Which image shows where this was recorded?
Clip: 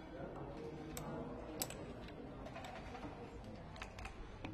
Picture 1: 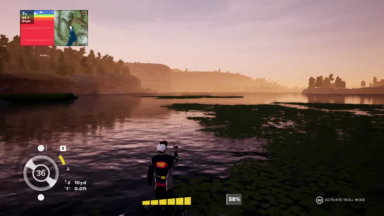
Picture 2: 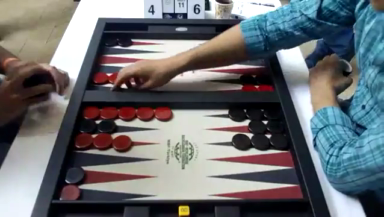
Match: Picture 2